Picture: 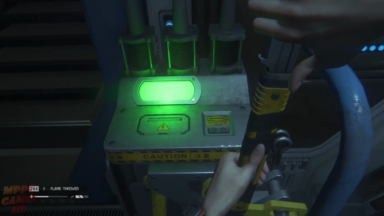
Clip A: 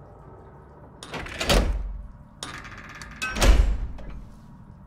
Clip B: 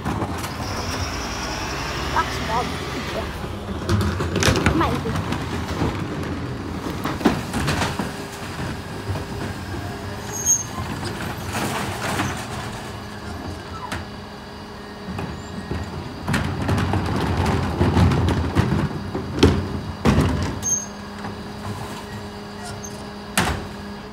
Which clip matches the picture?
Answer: A